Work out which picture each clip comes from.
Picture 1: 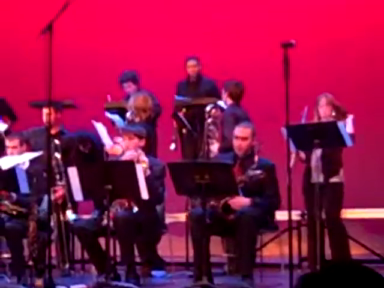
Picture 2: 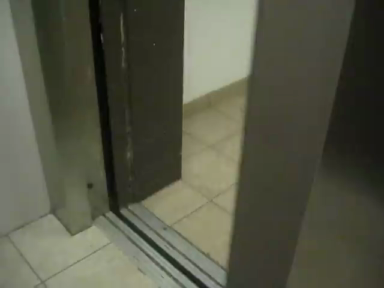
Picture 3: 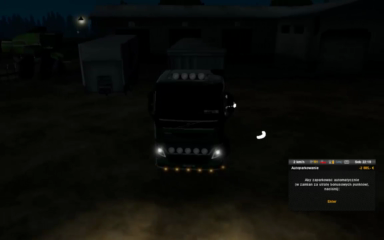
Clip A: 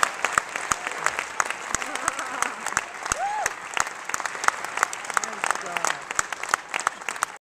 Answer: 1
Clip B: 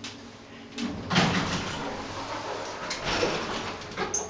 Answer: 2